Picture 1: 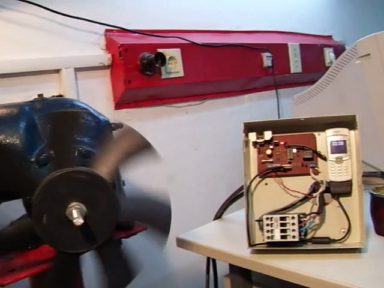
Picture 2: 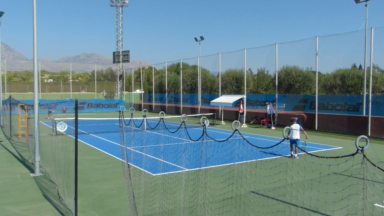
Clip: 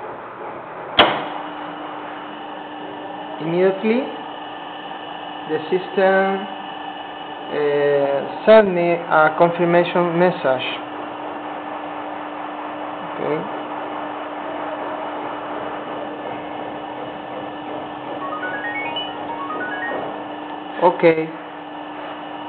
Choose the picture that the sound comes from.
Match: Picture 1